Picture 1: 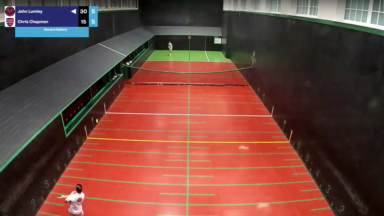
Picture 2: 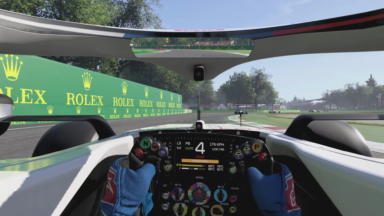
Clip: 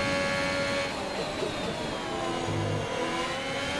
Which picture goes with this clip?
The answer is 2